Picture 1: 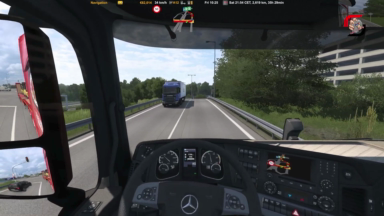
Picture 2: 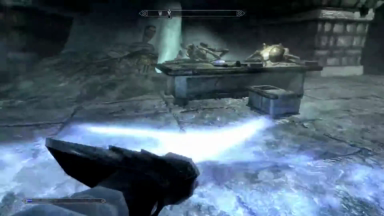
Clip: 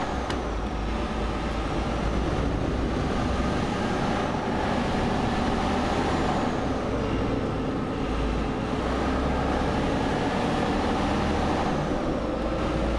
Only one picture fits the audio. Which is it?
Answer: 1